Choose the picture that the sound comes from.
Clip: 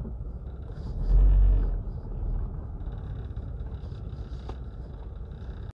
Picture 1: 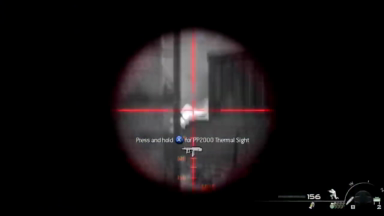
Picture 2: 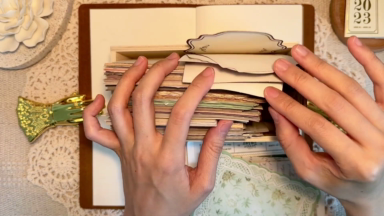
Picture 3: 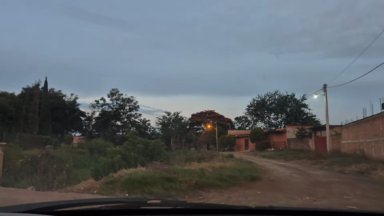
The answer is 3